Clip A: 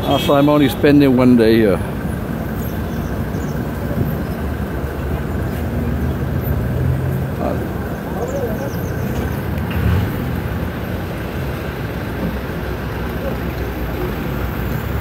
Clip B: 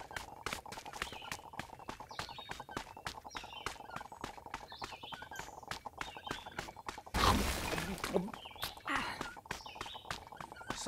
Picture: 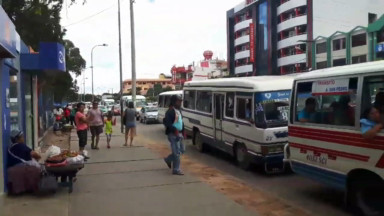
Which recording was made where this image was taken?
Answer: A